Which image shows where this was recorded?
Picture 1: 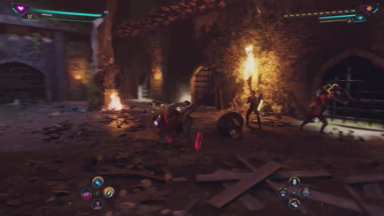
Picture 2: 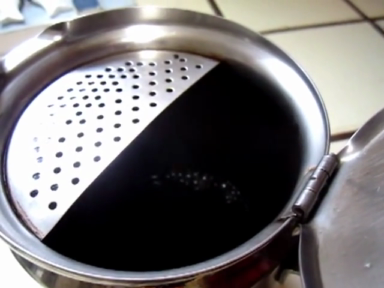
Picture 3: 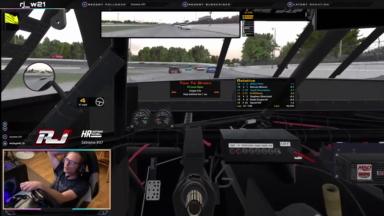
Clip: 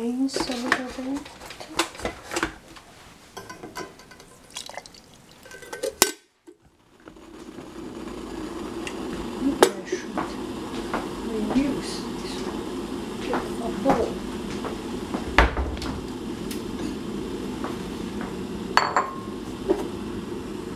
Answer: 2